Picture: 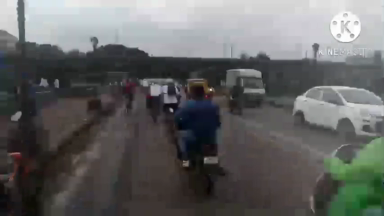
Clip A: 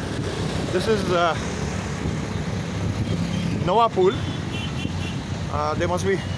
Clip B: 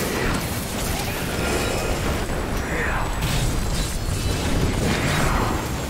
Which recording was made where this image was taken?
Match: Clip A